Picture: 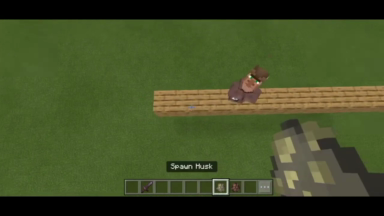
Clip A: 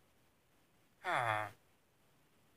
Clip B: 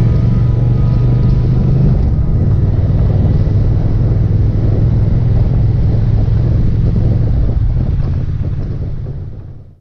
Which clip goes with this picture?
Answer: A